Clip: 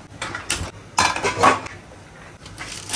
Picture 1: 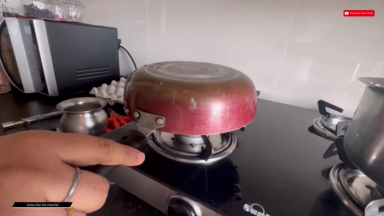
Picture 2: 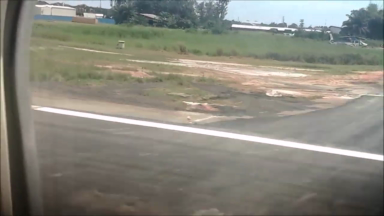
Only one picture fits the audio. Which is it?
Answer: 1